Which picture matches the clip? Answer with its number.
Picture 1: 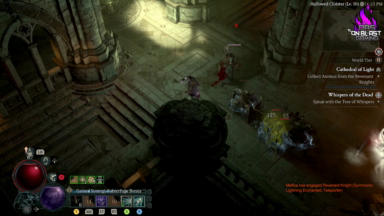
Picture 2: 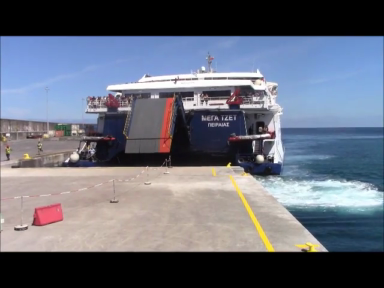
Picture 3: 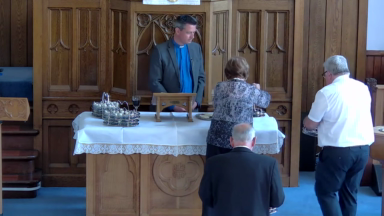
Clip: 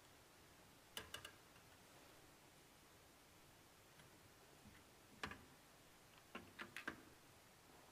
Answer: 3